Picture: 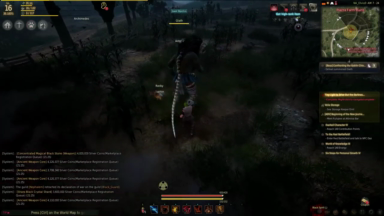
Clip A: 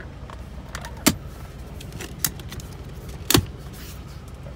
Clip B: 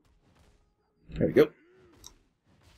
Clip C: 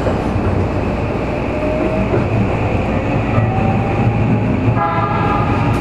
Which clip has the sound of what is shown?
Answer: B